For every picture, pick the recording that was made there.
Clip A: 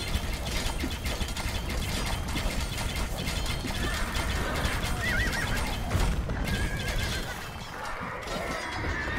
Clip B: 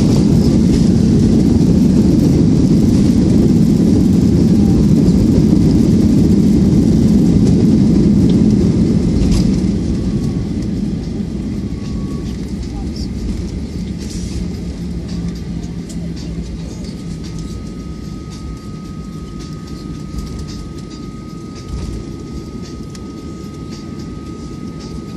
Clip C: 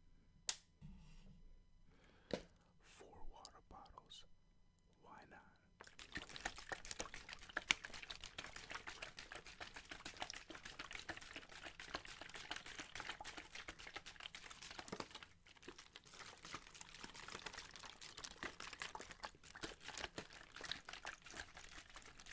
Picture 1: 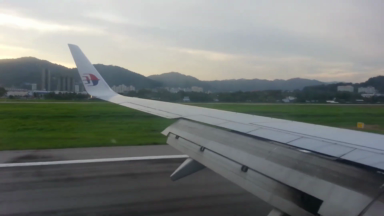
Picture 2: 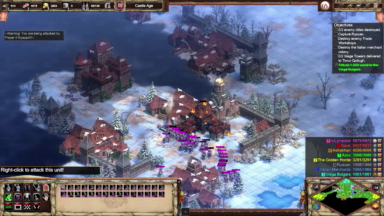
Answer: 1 B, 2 A